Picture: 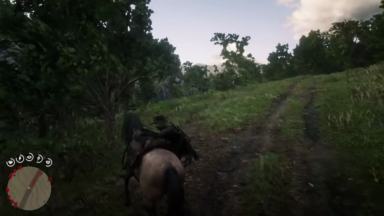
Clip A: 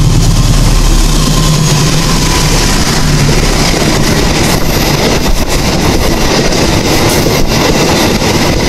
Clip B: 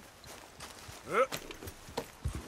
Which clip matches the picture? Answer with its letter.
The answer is B